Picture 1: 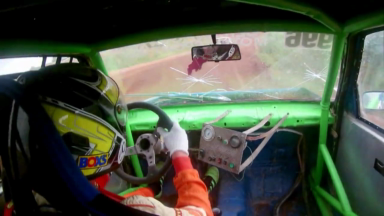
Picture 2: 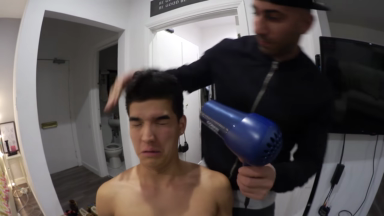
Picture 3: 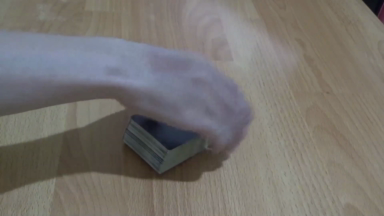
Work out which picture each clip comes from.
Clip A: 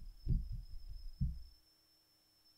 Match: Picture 3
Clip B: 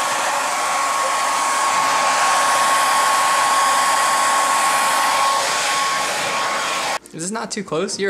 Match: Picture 2